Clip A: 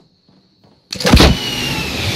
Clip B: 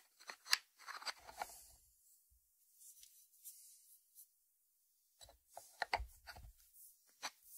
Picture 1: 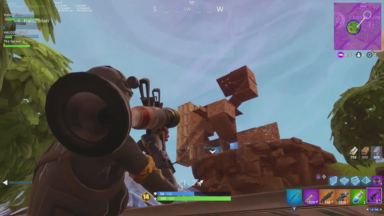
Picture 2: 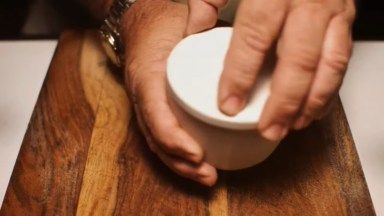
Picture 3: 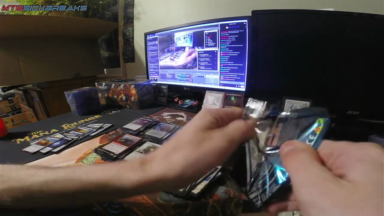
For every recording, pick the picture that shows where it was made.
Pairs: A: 1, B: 2